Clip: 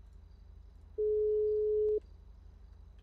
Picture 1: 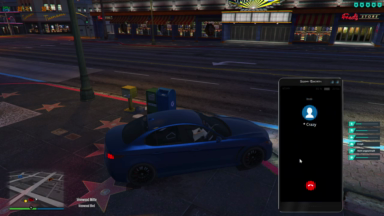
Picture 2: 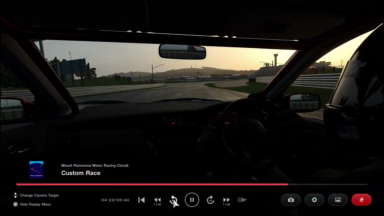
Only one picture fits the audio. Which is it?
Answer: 1